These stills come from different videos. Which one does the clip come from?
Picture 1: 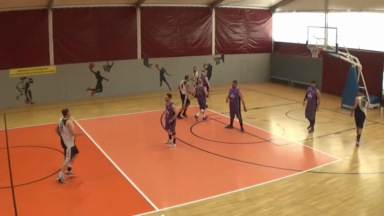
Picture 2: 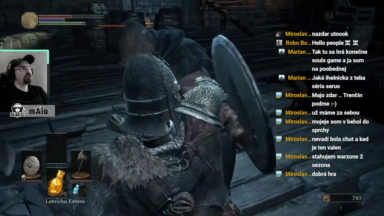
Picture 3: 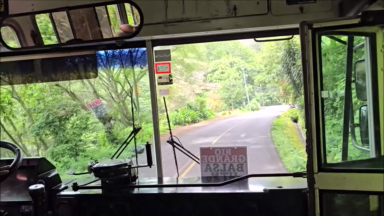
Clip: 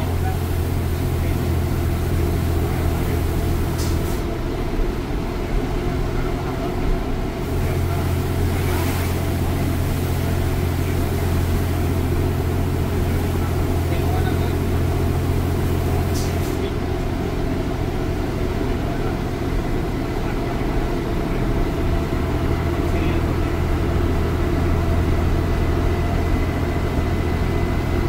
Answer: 3